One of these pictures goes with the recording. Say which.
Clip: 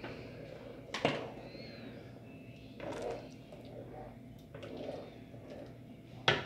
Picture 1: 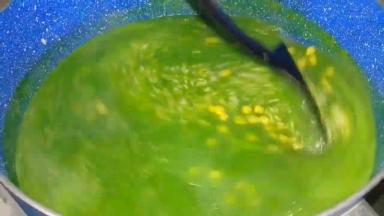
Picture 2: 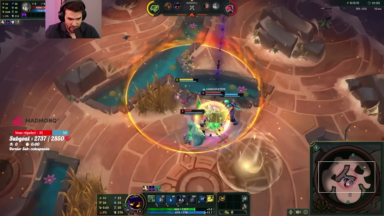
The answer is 1